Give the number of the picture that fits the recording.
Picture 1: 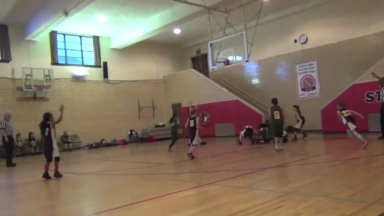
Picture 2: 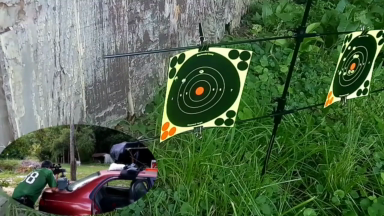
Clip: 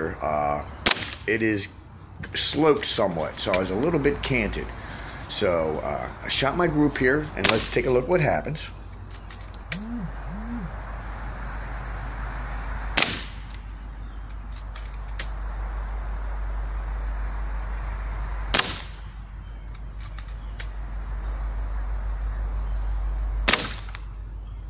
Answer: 2